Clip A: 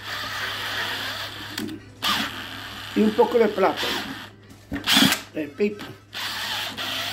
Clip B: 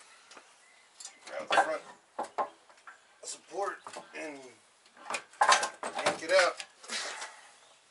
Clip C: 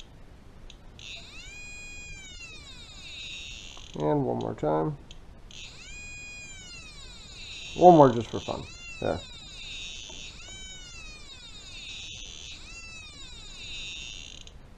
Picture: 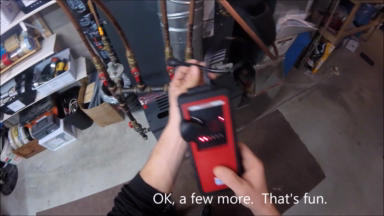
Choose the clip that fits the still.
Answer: C